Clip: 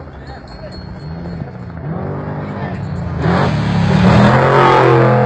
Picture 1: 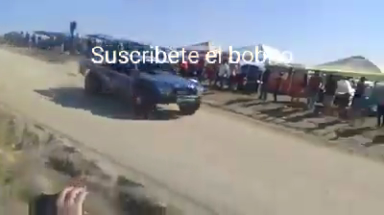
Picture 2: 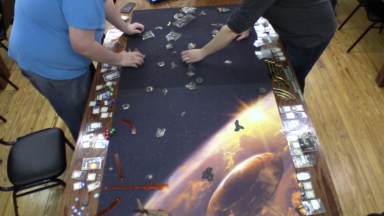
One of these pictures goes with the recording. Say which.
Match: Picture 1